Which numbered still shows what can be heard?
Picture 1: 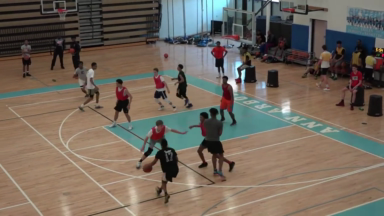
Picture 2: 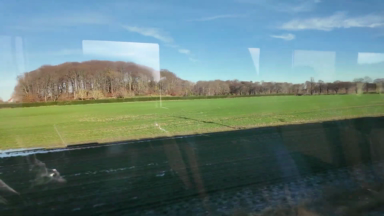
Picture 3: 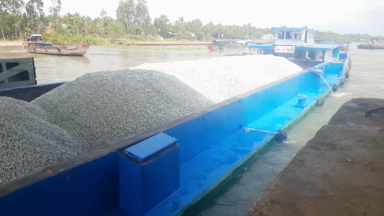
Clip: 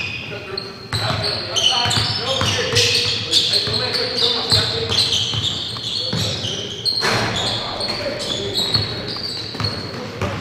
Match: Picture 1